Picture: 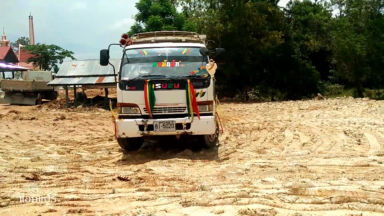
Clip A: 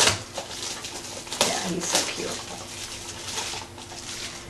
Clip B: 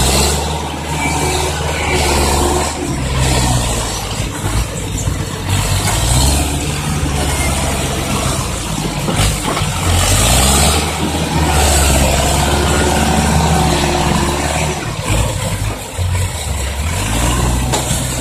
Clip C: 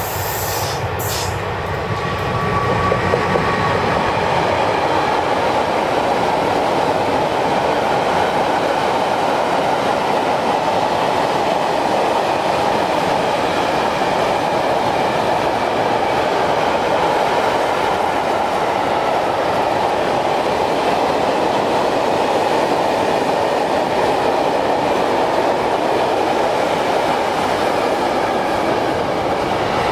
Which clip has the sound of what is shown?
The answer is B